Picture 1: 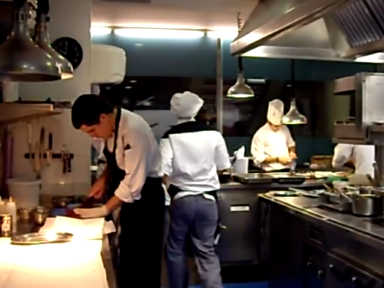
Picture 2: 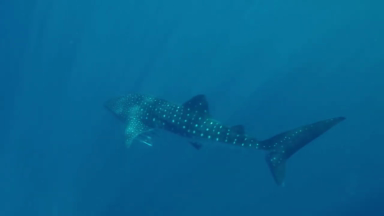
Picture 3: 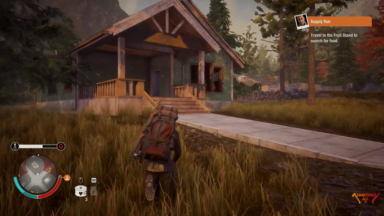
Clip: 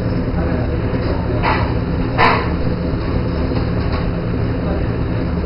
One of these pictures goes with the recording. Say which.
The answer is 1